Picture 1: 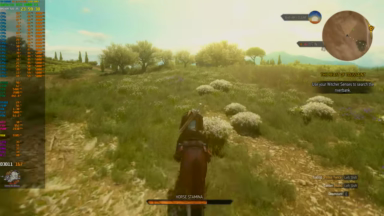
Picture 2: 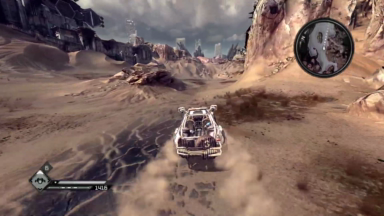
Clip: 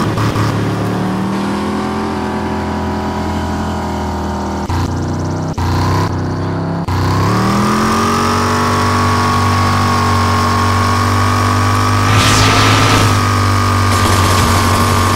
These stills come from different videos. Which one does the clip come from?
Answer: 2